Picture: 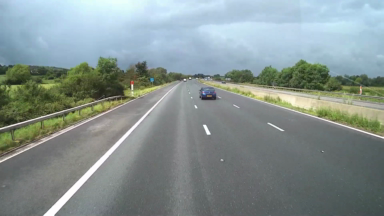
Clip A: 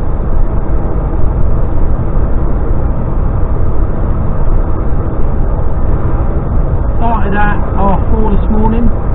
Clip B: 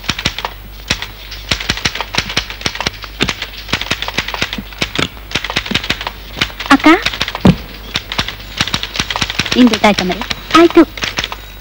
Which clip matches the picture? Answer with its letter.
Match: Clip A